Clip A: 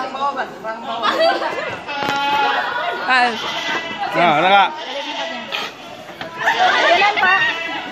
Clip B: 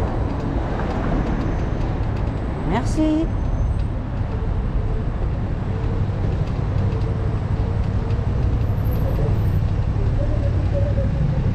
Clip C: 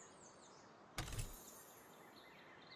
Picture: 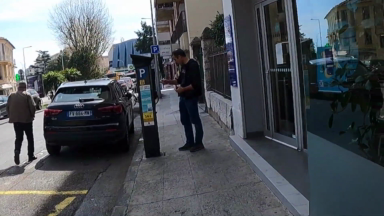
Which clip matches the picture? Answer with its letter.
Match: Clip B